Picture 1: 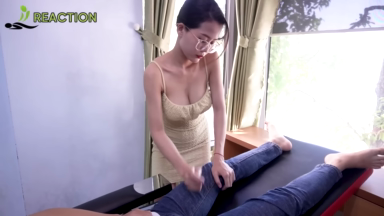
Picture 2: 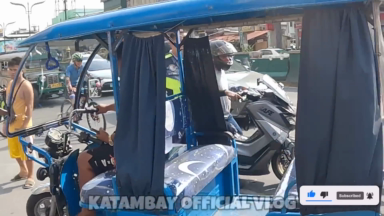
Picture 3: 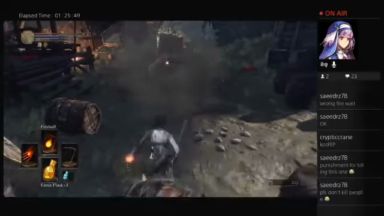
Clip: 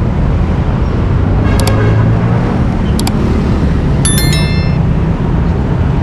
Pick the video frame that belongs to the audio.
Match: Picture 2